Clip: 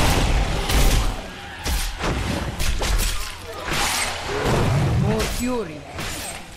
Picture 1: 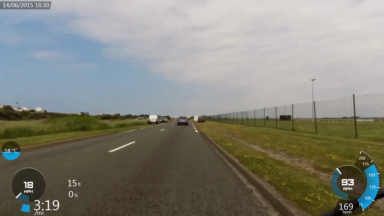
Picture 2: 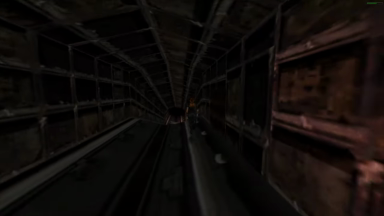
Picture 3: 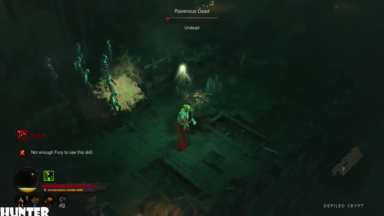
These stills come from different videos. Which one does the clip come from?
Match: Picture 3